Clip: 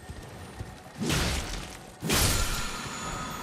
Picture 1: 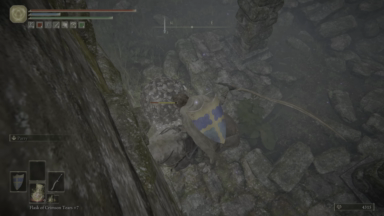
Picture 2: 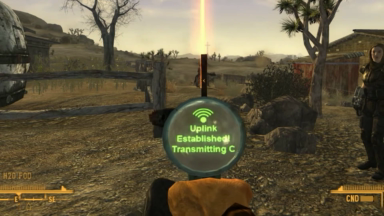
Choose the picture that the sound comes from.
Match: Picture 1